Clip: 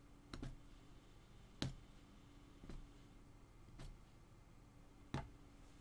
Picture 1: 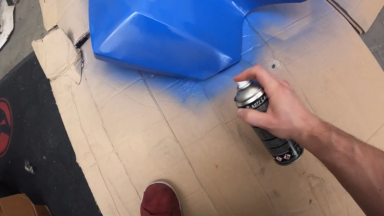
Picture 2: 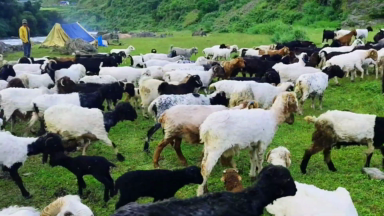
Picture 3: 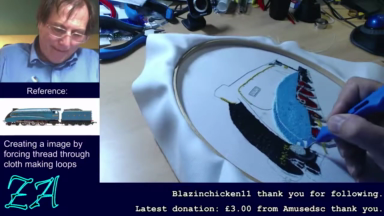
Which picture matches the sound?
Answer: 3